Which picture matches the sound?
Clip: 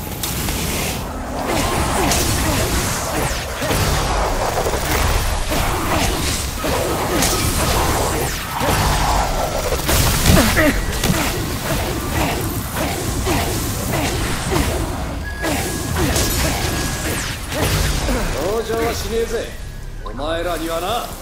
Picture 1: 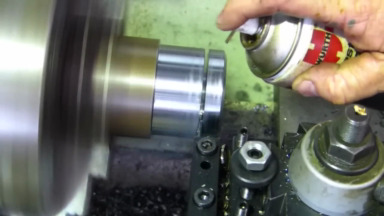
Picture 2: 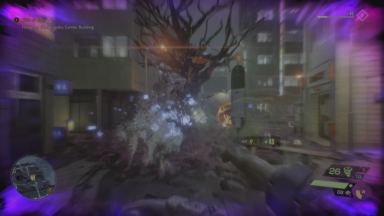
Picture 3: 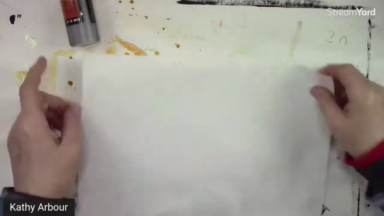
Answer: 2